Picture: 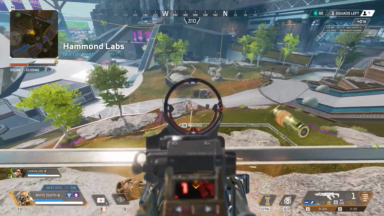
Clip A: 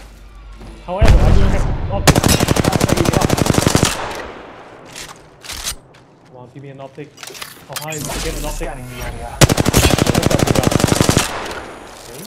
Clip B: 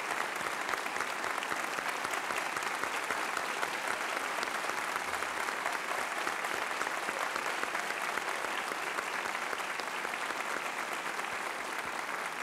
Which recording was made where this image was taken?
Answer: A